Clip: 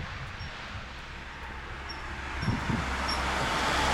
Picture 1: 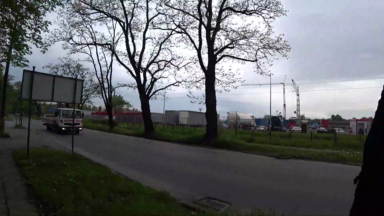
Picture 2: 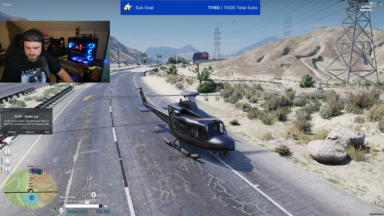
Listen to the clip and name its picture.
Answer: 1